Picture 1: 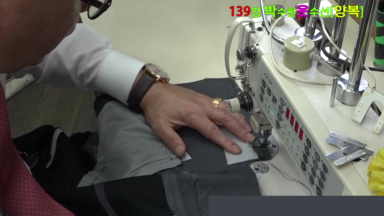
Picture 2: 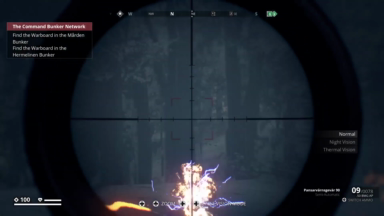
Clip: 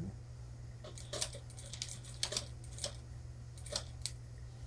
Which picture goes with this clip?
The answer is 1